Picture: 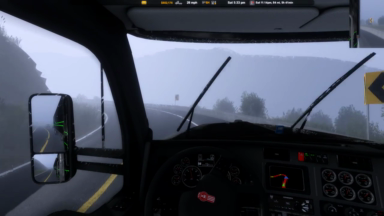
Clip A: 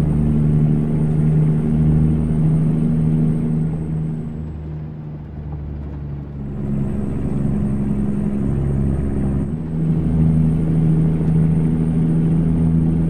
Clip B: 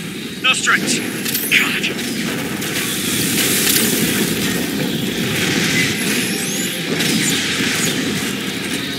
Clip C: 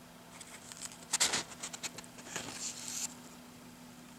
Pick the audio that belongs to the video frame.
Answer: A